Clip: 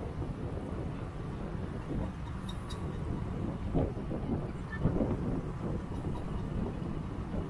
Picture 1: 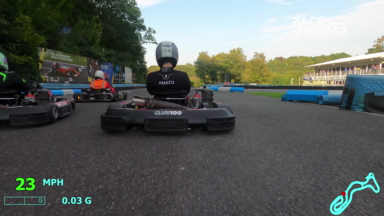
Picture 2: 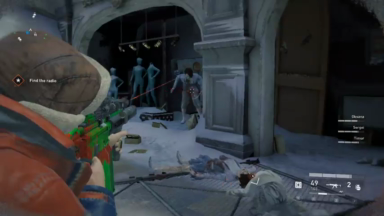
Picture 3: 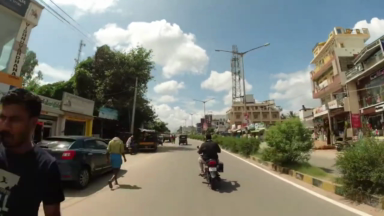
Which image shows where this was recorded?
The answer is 3